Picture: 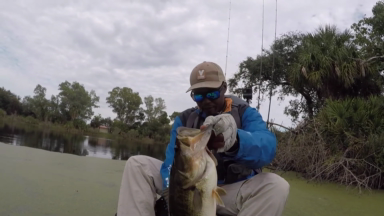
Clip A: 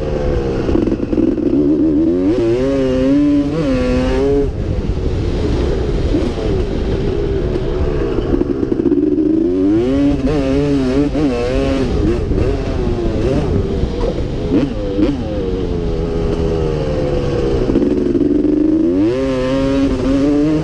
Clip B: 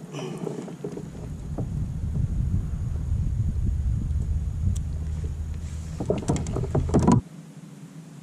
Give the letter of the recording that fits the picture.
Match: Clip B